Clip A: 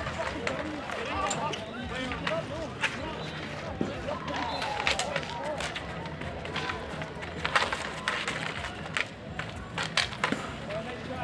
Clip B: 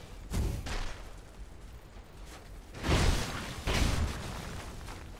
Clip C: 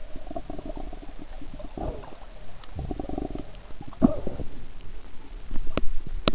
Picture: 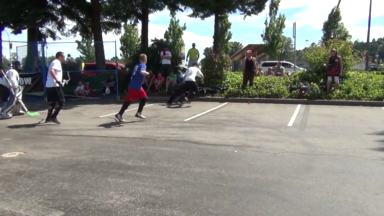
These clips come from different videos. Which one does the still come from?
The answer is A